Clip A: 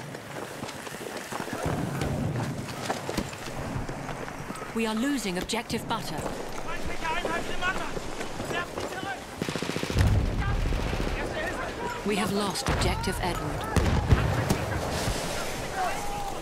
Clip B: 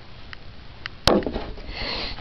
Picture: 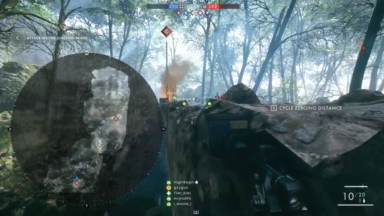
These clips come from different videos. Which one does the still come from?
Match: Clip A